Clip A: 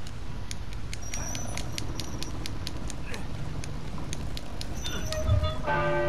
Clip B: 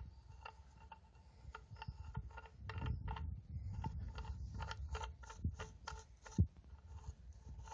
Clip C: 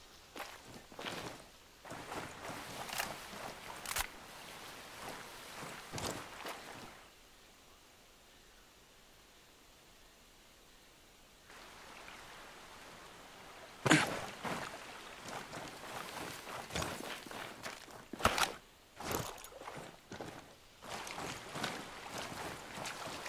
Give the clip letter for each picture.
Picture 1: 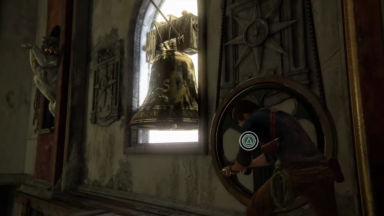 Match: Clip A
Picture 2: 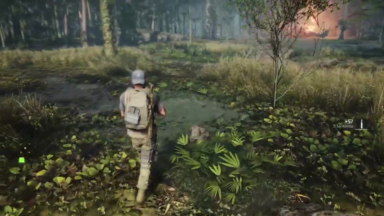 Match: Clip C